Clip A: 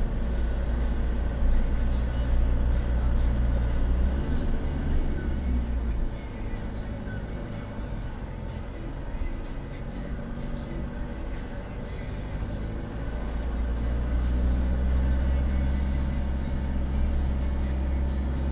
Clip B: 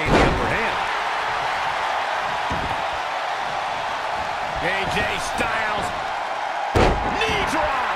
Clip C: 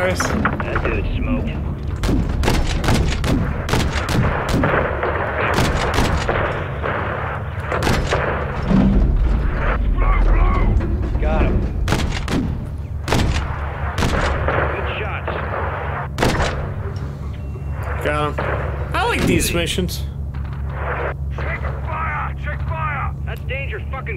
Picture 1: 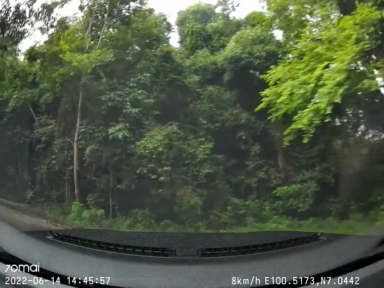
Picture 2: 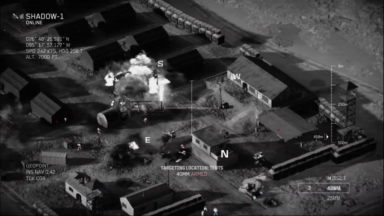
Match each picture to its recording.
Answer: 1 A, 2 C